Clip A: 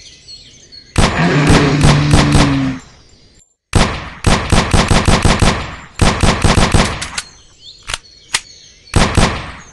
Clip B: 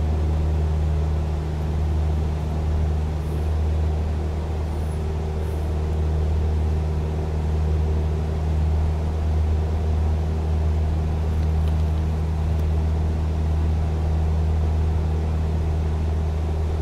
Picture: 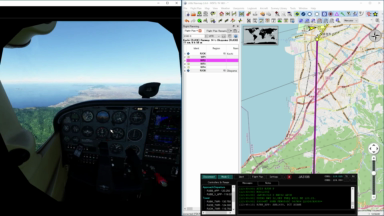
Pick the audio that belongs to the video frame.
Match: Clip B